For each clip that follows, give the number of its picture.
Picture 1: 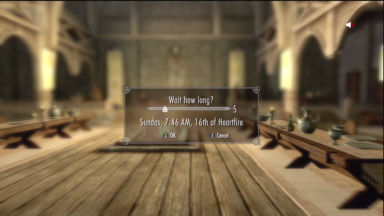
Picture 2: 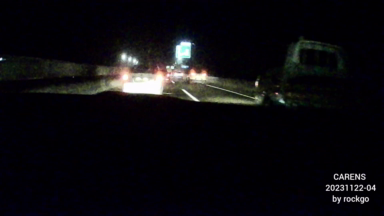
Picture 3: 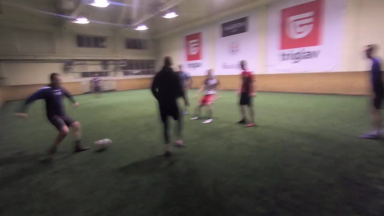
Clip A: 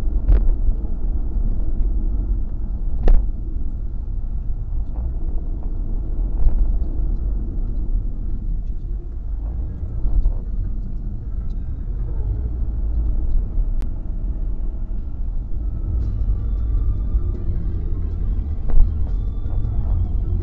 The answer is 2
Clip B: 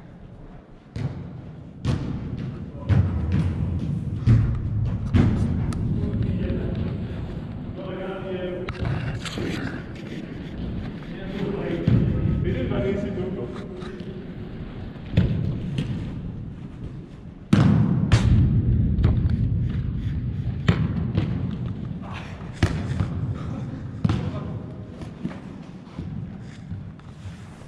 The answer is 3